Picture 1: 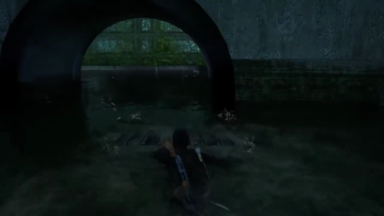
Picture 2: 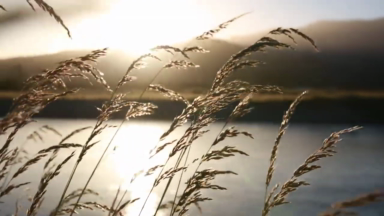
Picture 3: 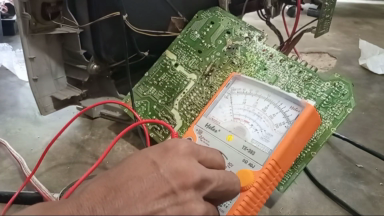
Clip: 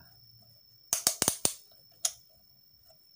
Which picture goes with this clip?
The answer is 3